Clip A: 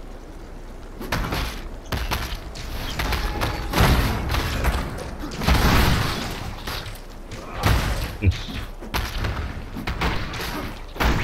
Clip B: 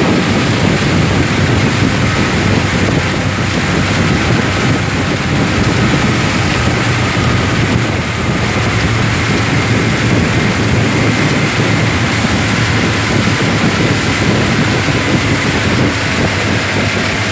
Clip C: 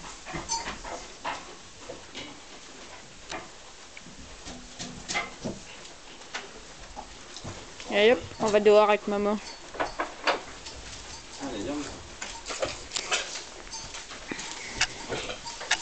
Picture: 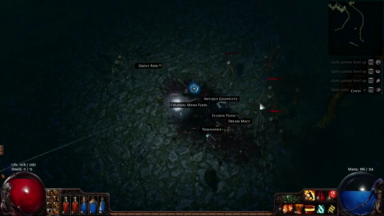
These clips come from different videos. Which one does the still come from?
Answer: A